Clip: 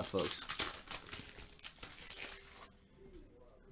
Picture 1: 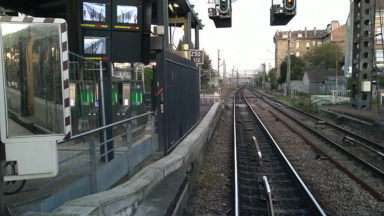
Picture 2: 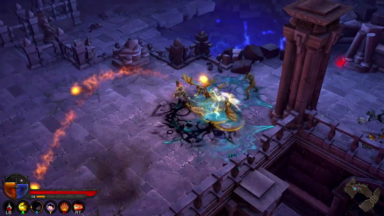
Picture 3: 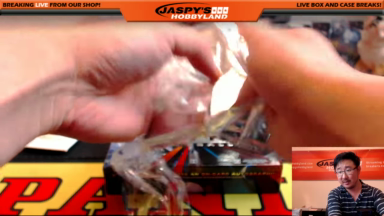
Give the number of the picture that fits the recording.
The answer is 3